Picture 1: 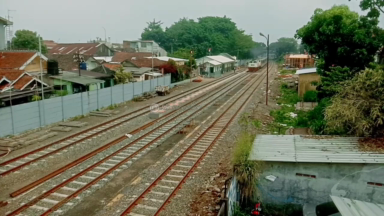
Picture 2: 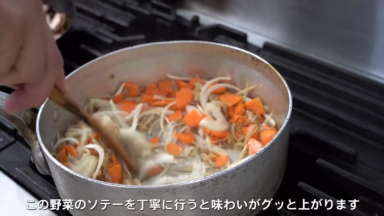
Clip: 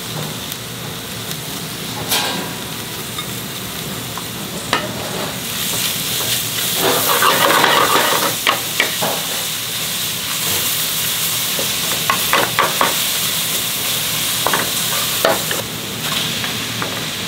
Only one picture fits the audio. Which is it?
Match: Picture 2